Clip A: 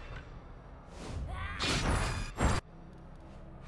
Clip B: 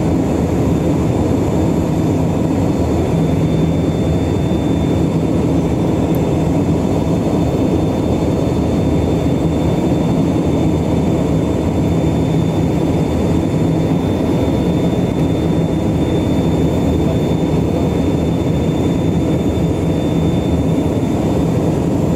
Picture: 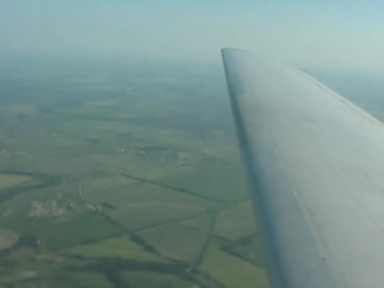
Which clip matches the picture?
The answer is B